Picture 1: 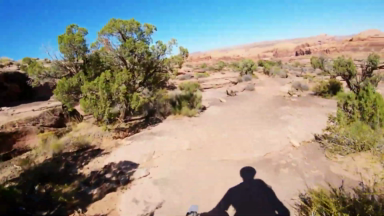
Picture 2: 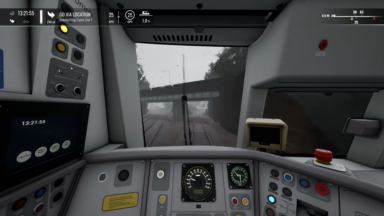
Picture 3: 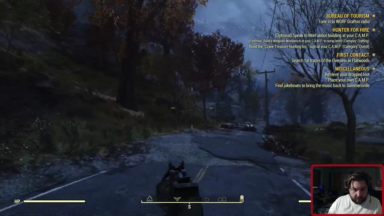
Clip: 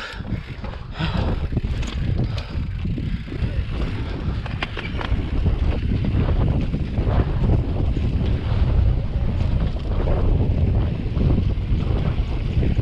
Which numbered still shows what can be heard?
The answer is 1